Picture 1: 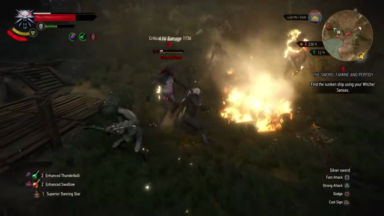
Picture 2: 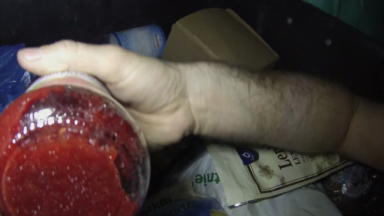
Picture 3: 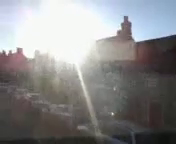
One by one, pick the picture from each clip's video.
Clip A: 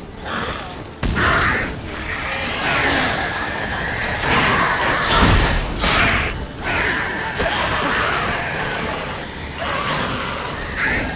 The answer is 1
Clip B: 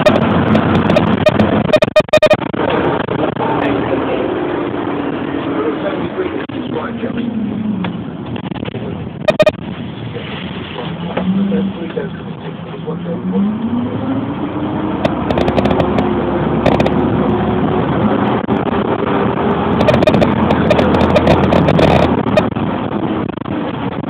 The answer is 3